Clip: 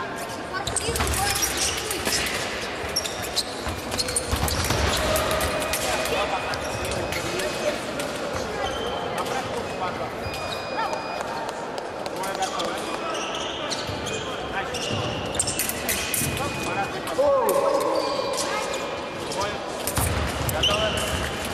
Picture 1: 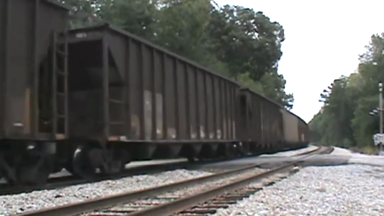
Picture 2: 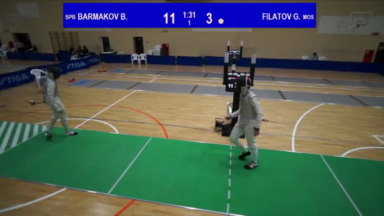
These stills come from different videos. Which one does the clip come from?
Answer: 2